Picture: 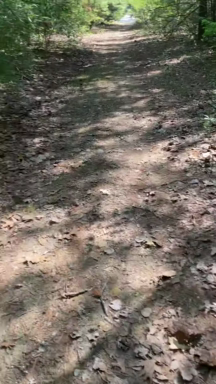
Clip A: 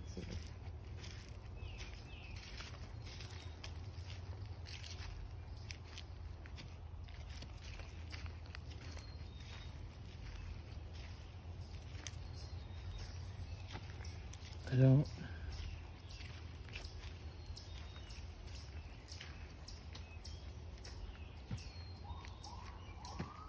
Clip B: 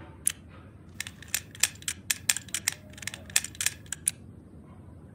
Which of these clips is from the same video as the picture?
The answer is A